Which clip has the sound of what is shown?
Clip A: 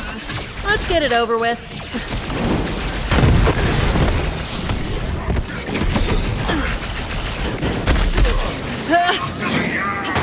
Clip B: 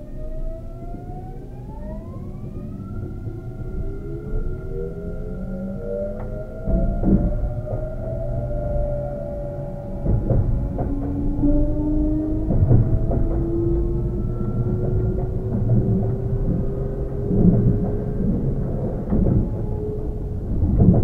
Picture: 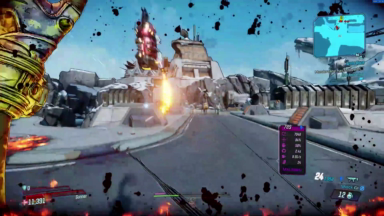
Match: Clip A